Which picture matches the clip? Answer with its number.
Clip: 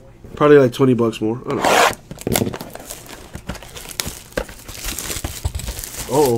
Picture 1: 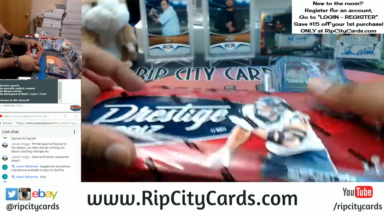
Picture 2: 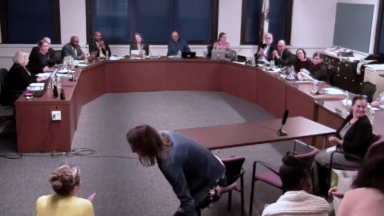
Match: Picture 1